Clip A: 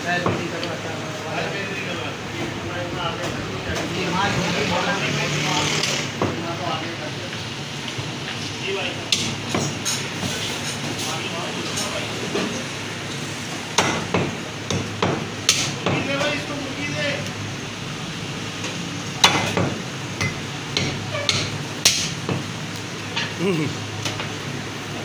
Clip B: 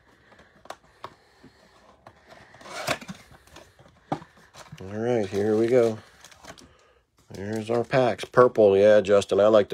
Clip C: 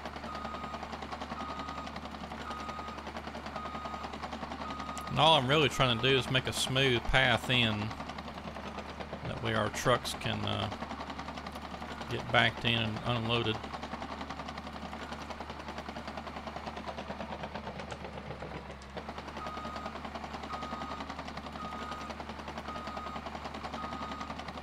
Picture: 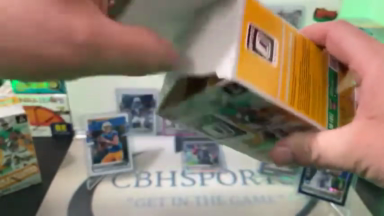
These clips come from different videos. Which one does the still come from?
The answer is B